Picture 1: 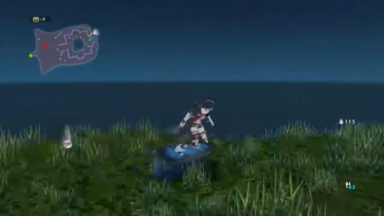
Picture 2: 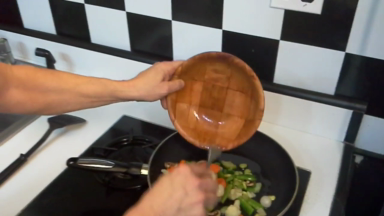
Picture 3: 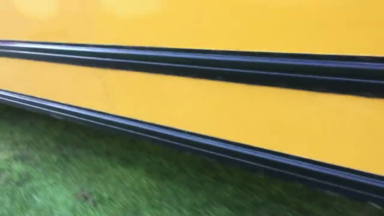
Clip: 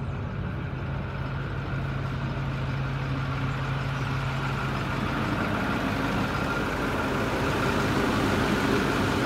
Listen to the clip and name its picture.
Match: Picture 3